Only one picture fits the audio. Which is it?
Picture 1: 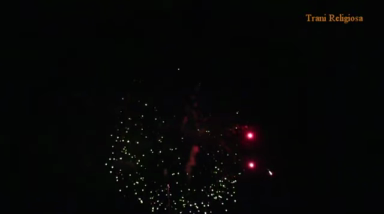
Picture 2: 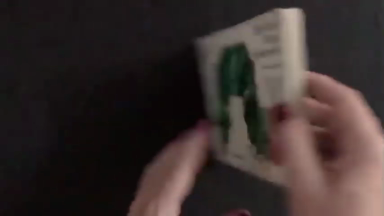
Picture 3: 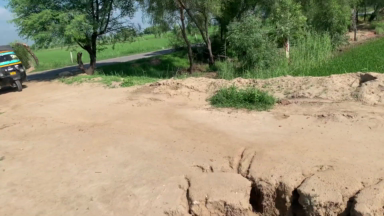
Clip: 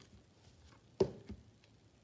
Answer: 2